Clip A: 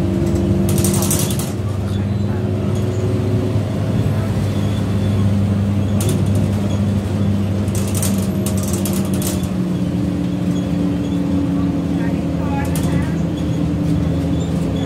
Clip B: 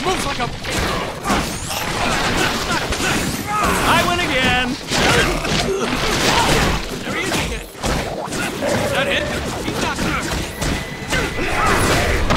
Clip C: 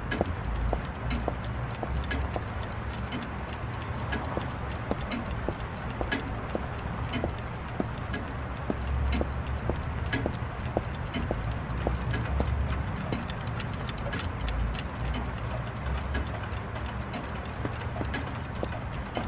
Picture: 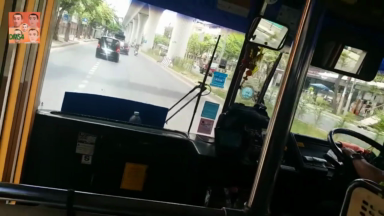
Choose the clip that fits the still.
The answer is A